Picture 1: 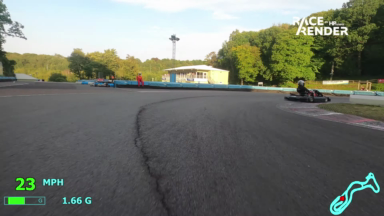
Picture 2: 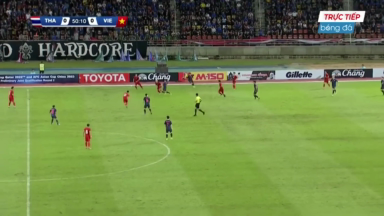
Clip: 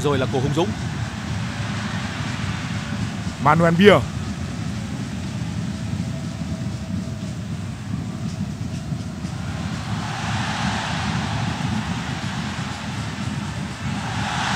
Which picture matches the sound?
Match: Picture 2